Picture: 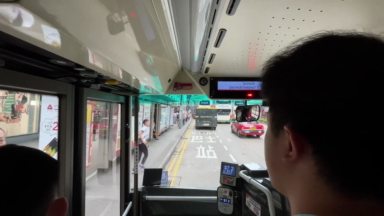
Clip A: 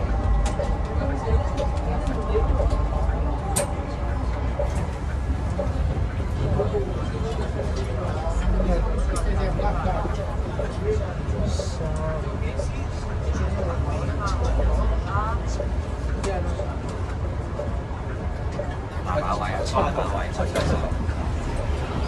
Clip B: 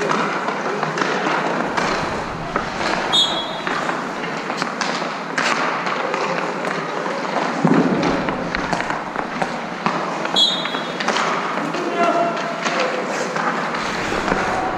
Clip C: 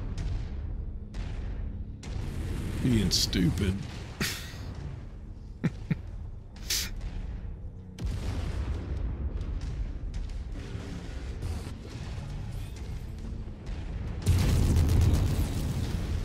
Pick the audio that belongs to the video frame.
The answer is A